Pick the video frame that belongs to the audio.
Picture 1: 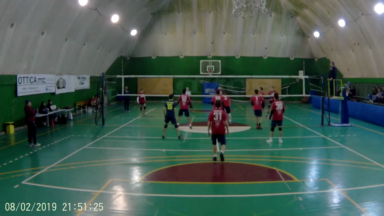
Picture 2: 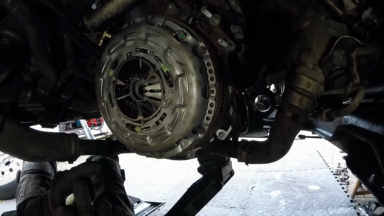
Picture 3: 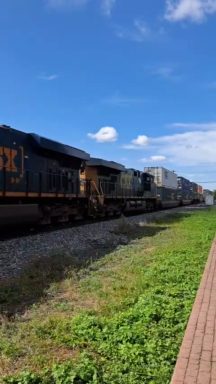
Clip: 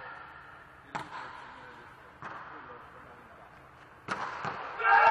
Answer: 1